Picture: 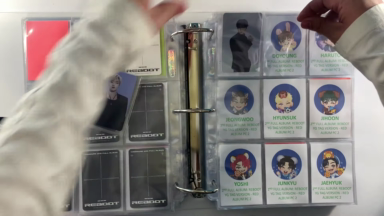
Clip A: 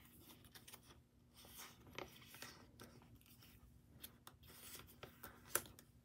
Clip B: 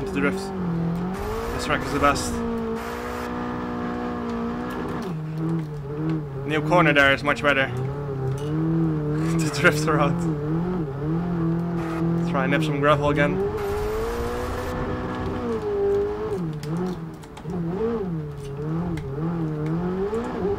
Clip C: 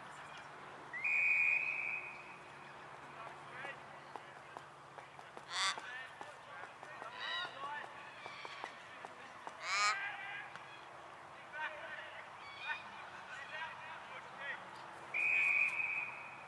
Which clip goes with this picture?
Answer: A